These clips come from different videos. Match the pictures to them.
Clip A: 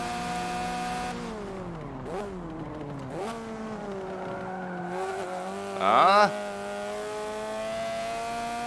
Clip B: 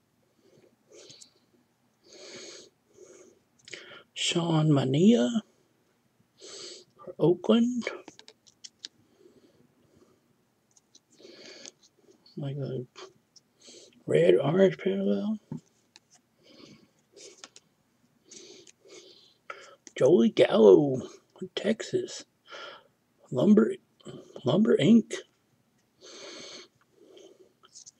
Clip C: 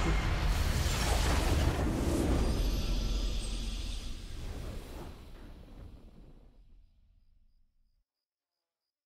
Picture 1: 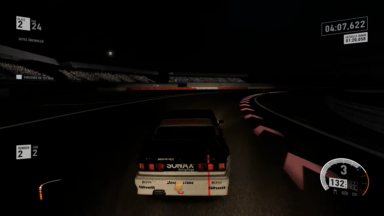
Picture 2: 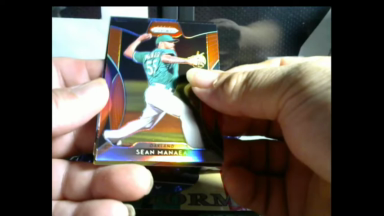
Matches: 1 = A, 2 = B